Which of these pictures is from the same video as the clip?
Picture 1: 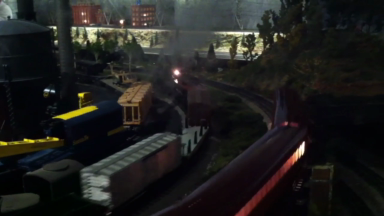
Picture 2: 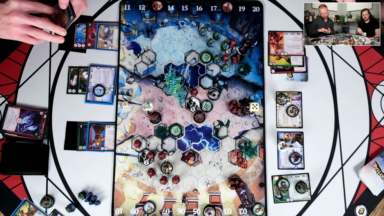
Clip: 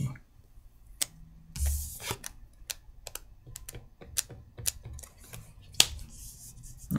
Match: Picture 2